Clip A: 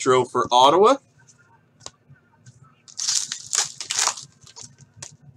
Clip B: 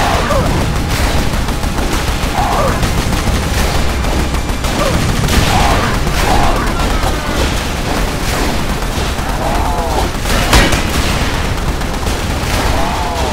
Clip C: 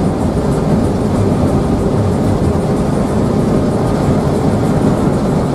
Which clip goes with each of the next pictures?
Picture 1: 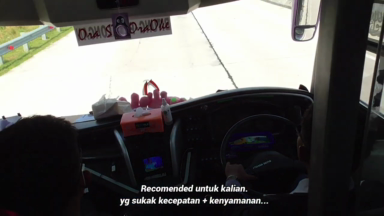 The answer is C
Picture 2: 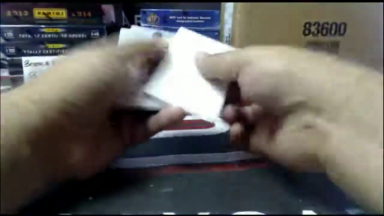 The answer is A